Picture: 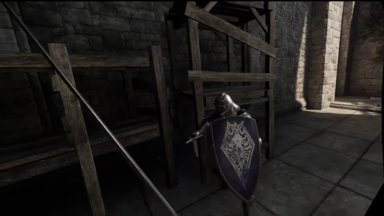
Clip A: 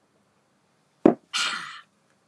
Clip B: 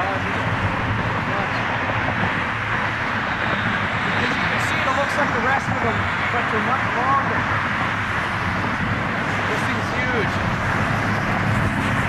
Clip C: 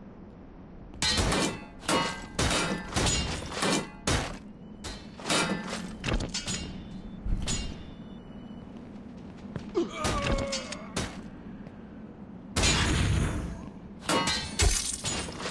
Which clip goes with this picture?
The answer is C